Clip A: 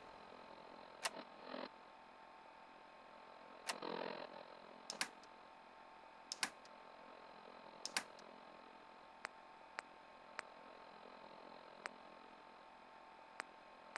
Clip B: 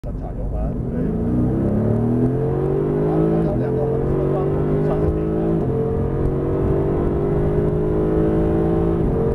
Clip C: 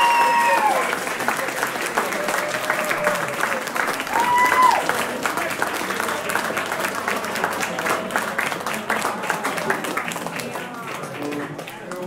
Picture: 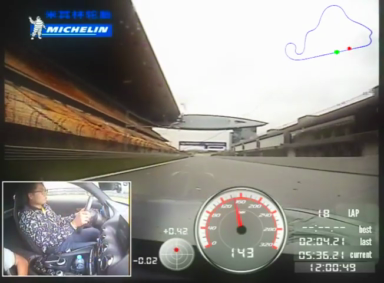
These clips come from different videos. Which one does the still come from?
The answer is B